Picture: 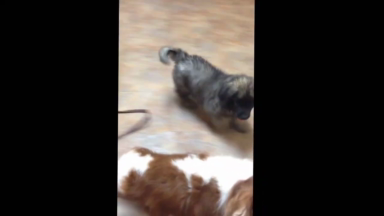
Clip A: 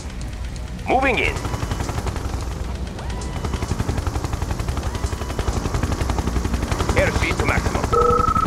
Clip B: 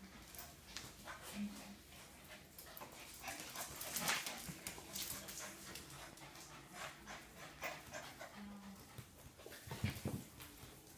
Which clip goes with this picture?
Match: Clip B